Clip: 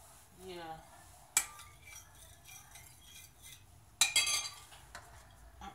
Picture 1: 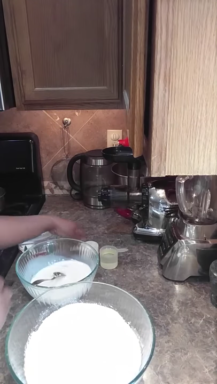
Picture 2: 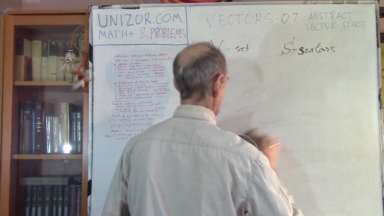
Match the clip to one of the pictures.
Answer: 1